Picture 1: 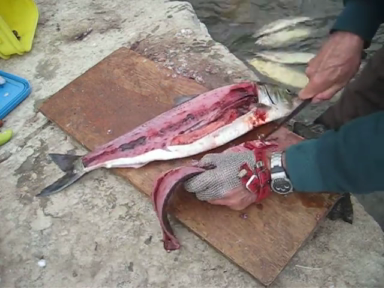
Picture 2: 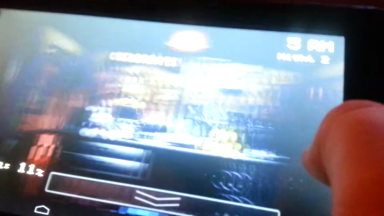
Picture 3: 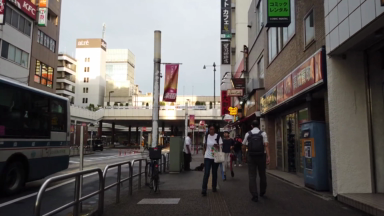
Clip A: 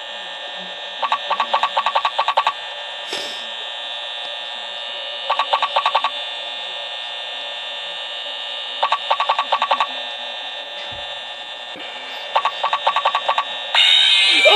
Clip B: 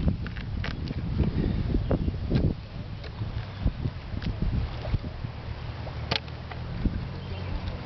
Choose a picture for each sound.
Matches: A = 2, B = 1